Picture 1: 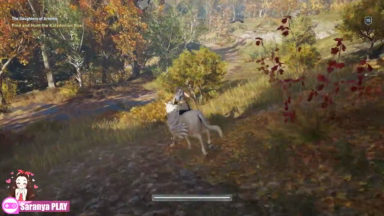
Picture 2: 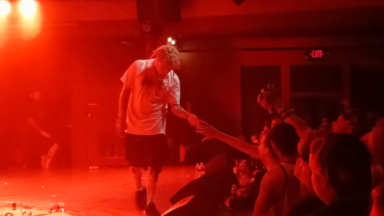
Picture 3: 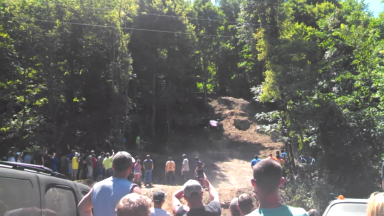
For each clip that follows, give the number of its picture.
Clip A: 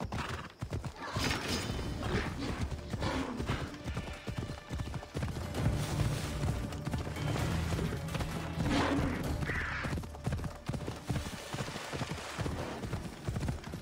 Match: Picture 1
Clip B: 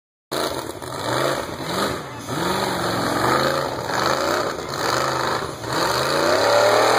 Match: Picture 3